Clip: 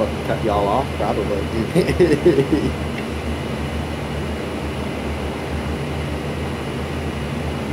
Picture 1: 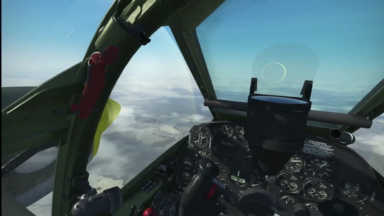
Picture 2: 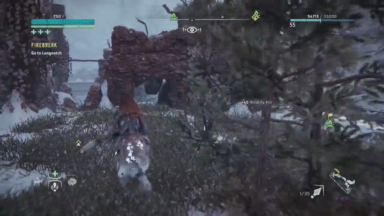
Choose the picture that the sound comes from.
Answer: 1